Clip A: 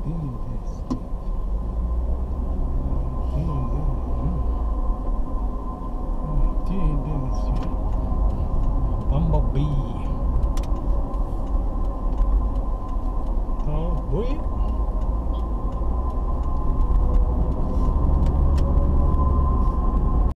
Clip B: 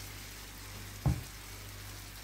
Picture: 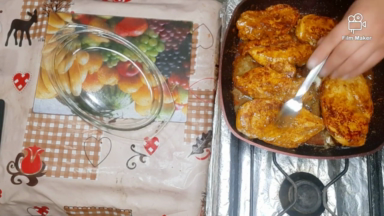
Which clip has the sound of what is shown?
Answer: B